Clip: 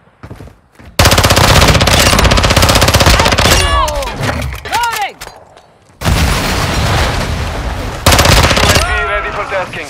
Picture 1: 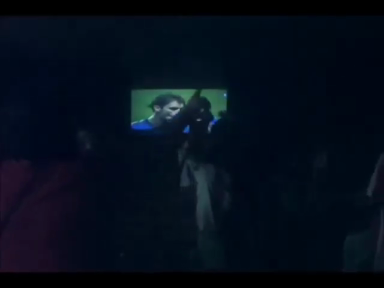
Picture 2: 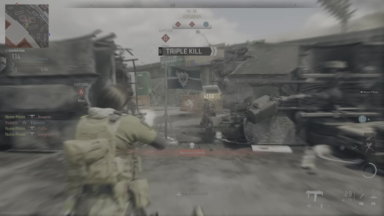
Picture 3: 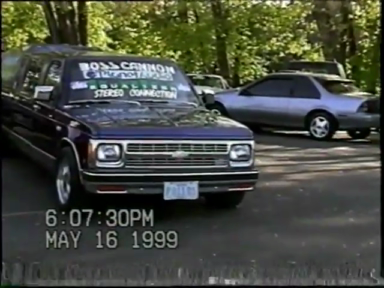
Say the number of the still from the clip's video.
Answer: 2